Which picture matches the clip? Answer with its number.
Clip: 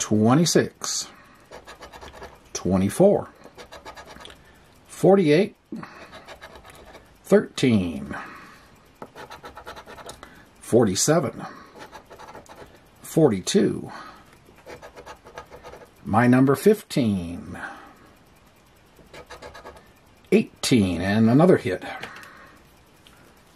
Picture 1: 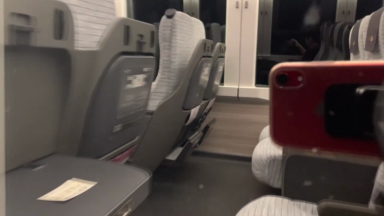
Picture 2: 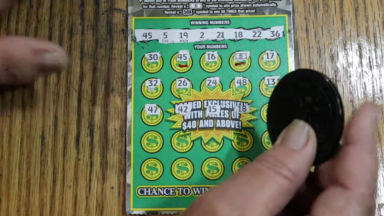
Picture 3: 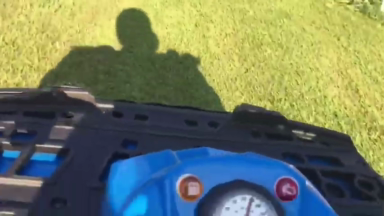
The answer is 2